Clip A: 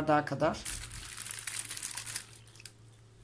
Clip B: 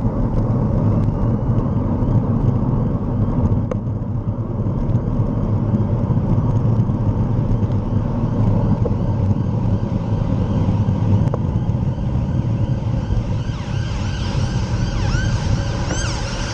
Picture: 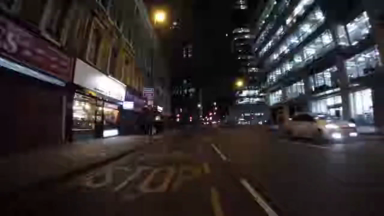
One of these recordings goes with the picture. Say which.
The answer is B